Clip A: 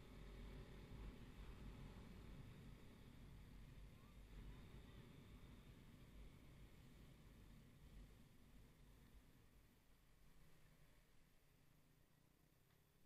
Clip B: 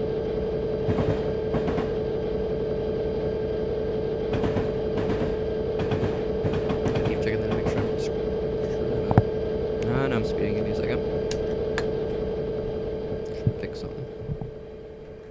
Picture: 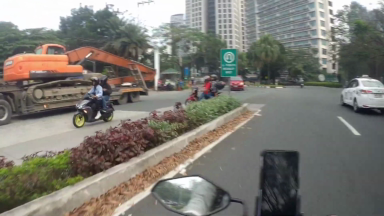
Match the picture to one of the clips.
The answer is A